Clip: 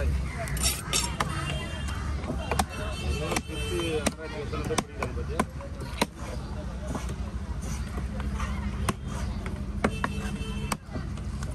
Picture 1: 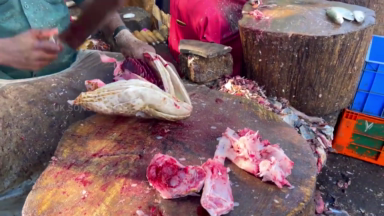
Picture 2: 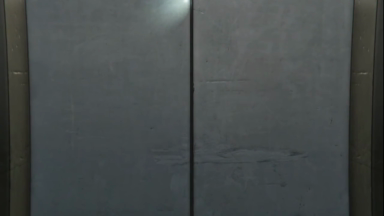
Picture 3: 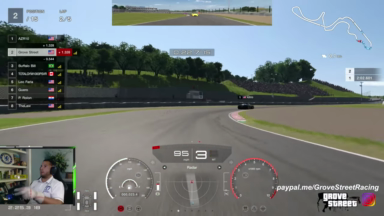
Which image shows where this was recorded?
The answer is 1